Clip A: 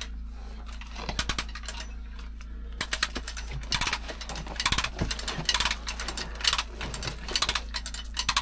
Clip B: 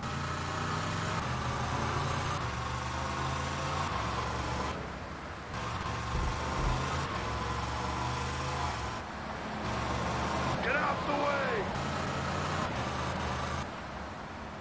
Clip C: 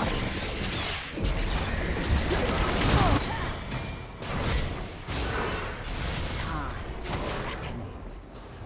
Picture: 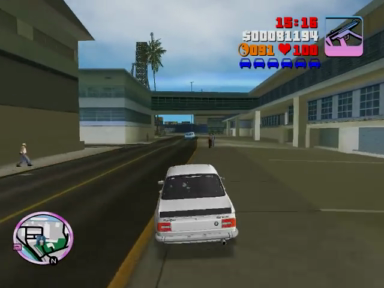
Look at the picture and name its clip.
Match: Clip B